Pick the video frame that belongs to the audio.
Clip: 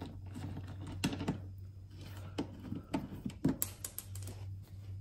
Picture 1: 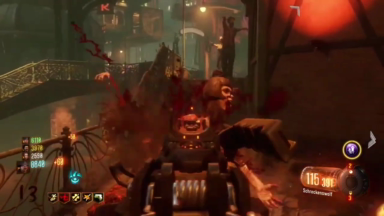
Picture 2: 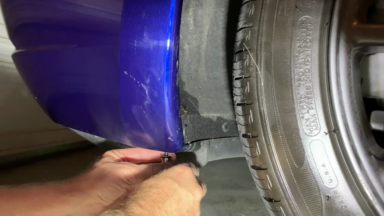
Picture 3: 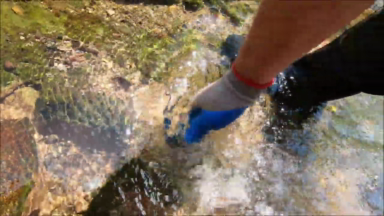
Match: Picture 2